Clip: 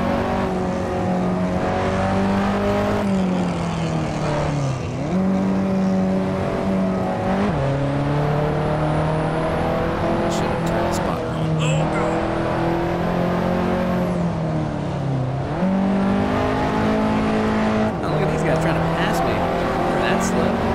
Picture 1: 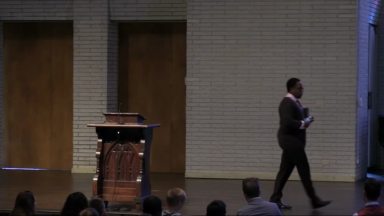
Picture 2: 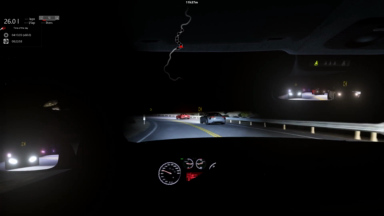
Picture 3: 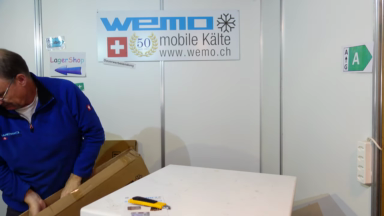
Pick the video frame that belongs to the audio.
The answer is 2